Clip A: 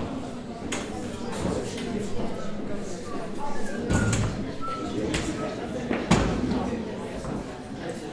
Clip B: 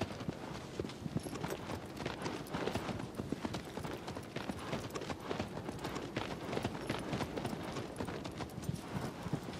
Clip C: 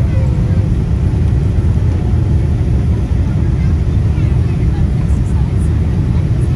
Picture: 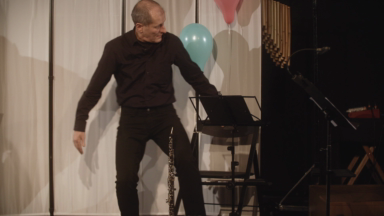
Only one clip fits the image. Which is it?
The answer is A